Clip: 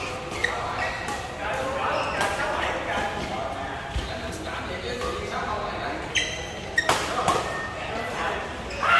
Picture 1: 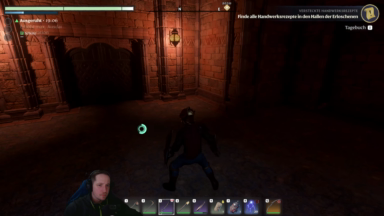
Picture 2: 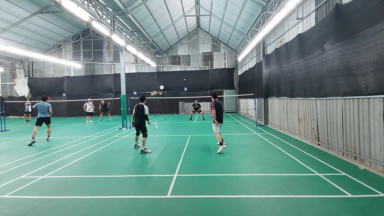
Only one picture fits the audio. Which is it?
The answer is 2